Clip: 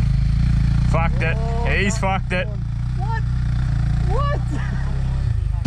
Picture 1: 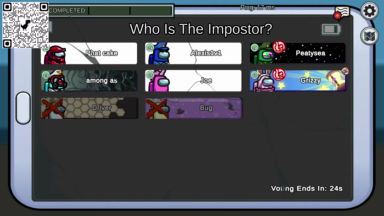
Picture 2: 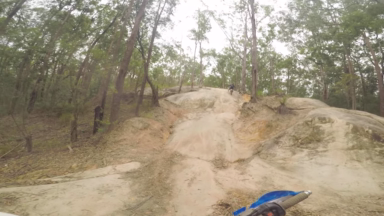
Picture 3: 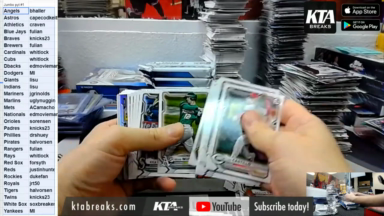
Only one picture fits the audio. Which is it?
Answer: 2